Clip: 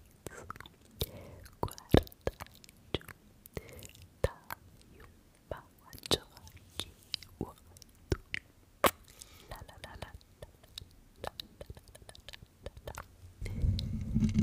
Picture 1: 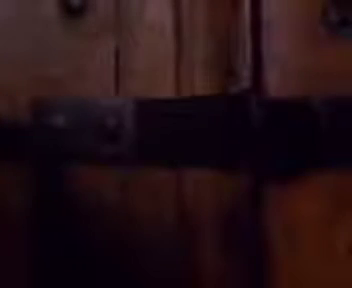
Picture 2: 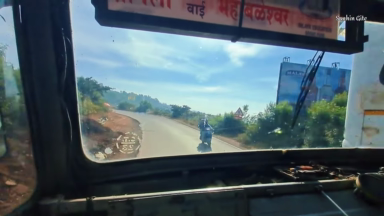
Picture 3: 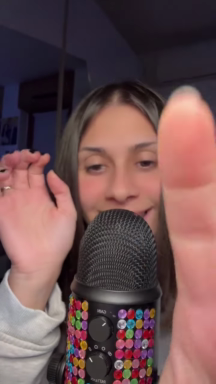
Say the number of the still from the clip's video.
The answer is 3